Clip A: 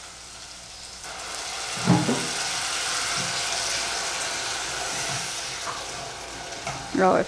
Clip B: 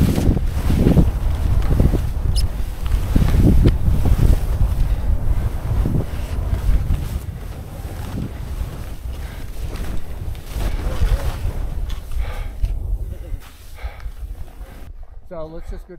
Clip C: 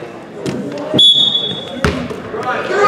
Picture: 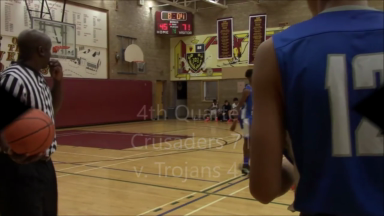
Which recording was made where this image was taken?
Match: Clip C